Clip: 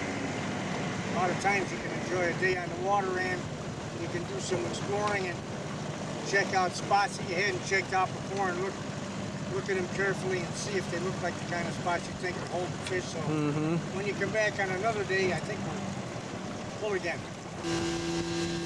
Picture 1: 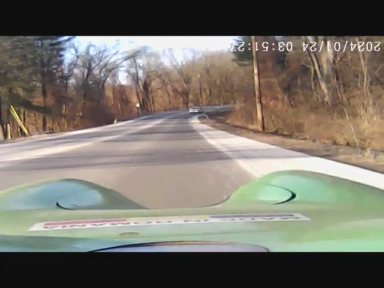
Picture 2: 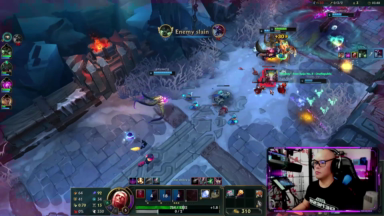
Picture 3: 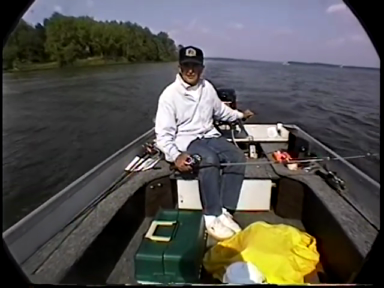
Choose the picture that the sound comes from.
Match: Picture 3